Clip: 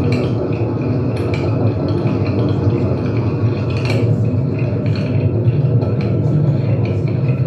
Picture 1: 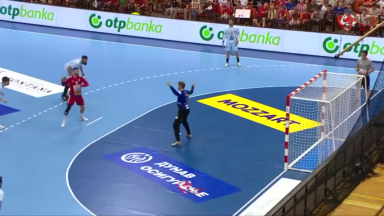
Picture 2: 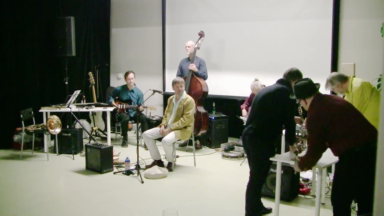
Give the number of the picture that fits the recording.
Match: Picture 2